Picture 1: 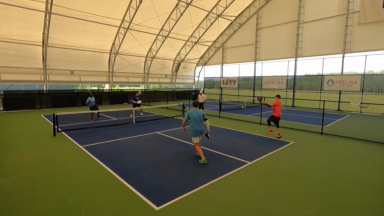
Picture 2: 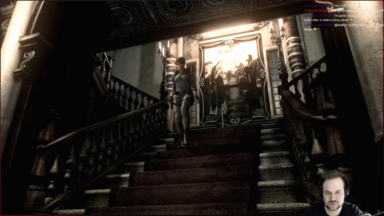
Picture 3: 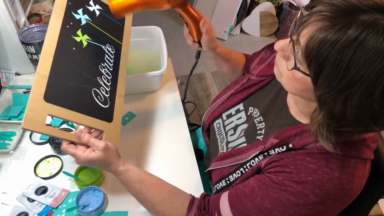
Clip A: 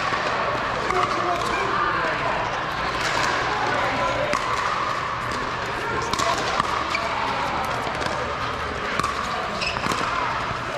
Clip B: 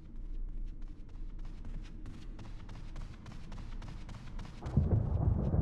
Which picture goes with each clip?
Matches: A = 1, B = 2